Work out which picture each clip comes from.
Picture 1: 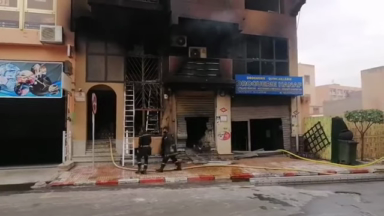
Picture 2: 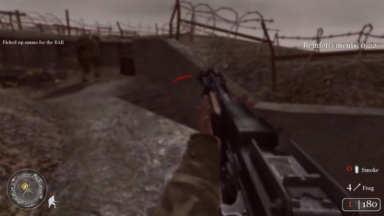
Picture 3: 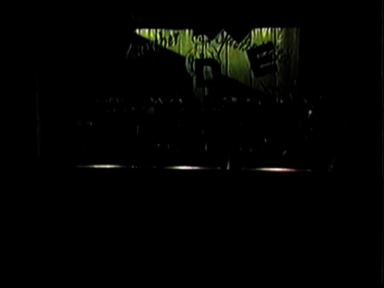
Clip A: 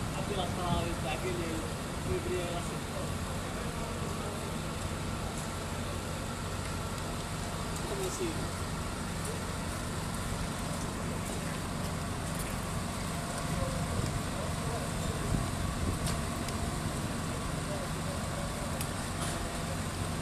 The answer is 1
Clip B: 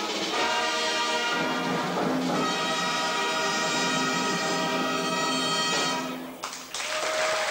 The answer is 3